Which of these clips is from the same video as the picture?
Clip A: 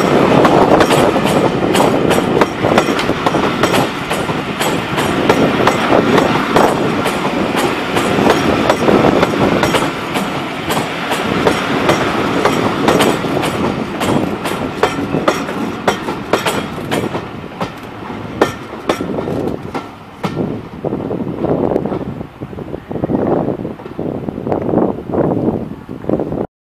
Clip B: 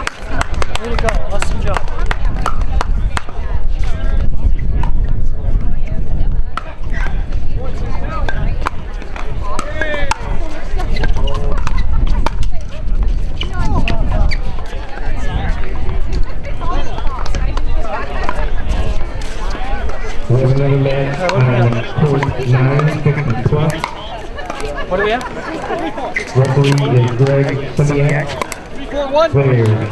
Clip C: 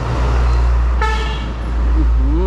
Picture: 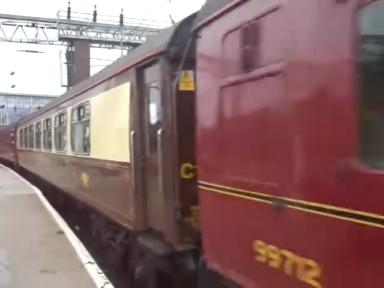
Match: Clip A